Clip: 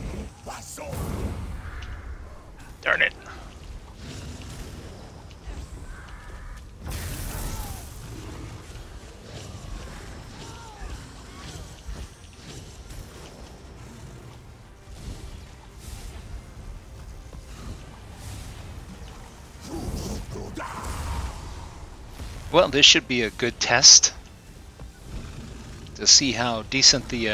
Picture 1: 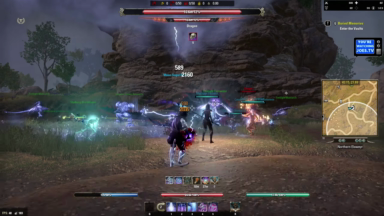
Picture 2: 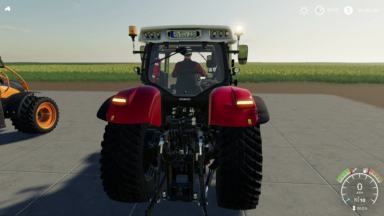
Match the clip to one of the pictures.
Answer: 1